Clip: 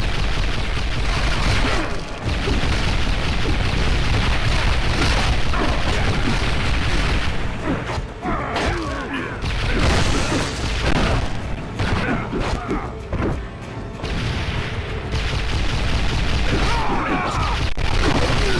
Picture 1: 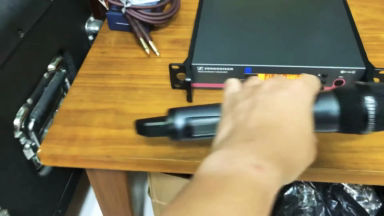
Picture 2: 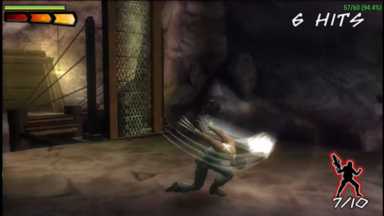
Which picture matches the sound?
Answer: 2